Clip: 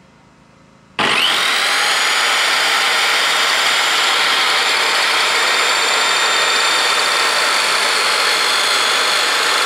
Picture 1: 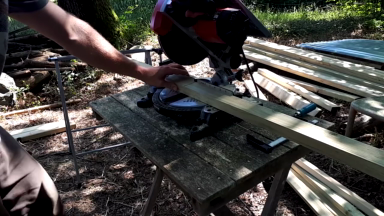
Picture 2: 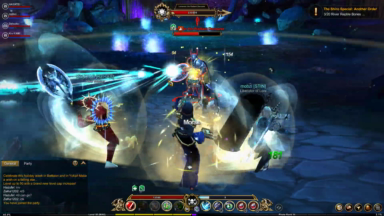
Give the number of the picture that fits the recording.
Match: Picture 1